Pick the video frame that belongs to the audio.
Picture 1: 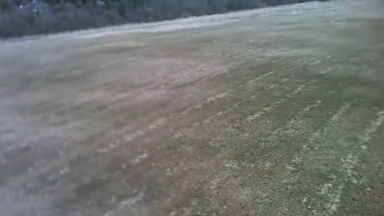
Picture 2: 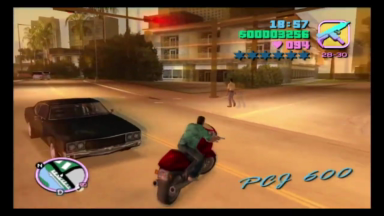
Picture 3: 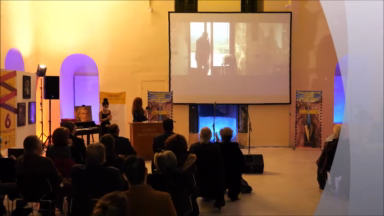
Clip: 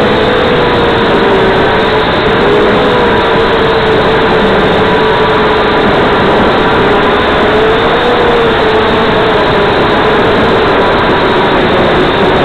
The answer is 1